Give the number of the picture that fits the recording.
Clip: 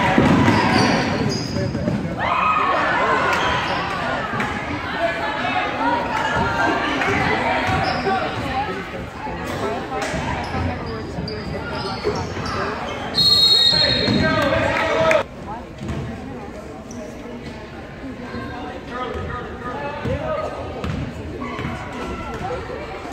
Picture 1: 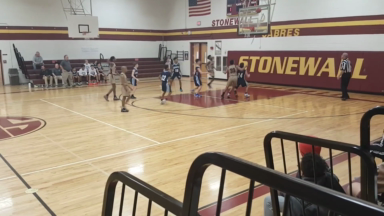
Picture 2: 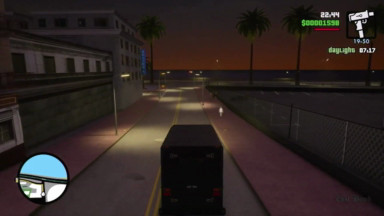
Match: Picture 1